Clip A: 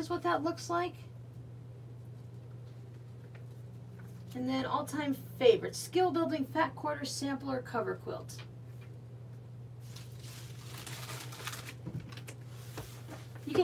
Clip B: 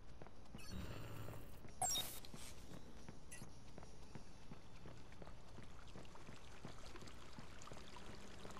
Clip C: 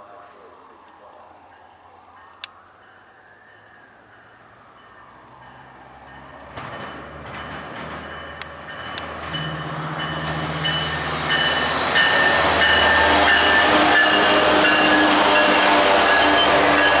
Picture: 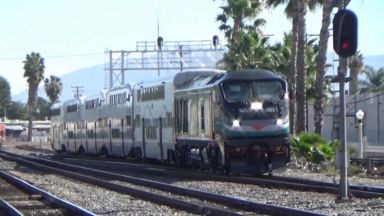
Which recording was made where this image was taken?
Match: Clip C